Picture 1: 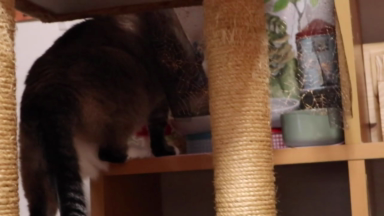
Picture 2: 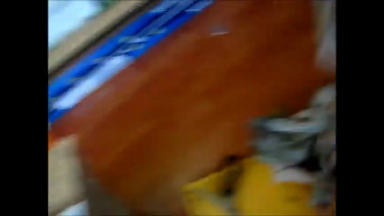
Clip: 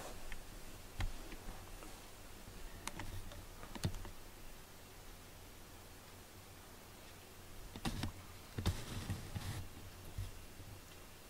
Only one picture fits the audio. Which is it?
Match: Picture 1